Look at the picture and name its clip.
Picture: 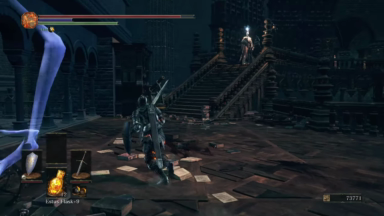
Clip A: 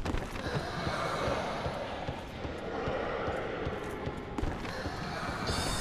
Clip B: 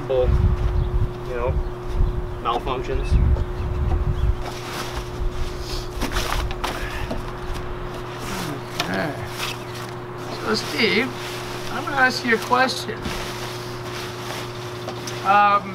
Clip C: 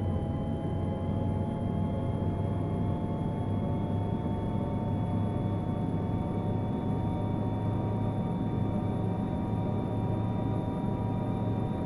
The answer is A